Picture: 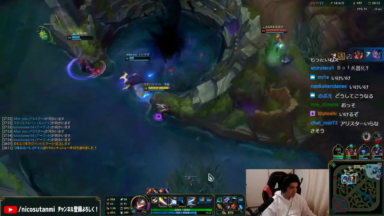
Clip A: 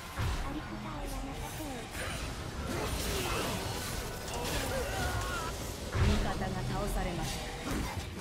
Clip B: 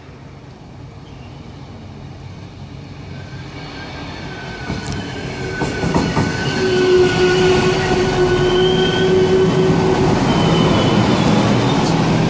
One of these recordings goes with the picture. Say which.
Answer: A